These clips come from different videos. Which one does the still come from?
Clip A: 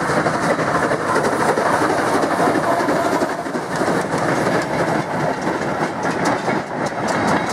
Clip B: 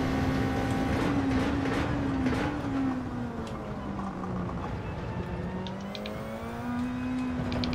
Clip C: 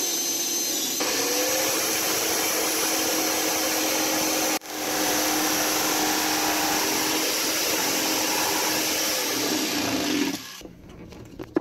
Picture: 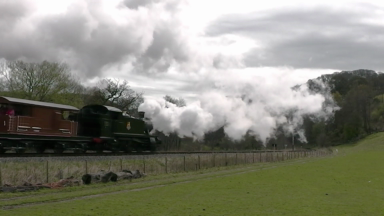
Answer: A